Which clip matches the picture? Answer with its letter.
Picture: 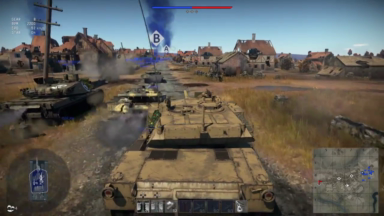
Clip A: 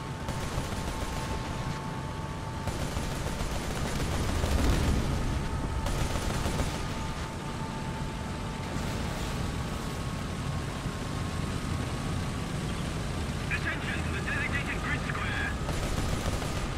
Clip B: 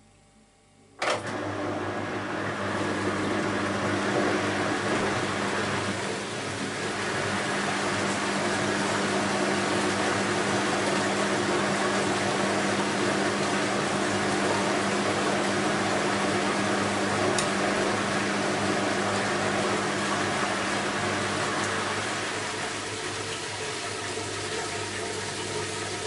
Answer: A